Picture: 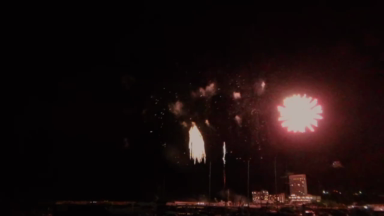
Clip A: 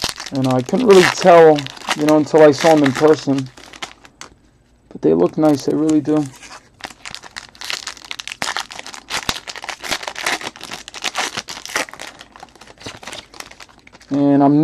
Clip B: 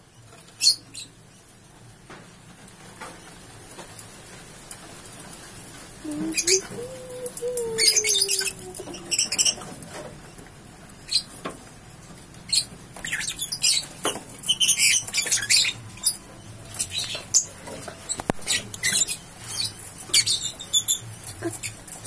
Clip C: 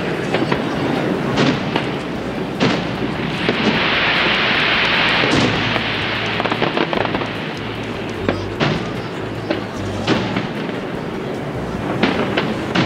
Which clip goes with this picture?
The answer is C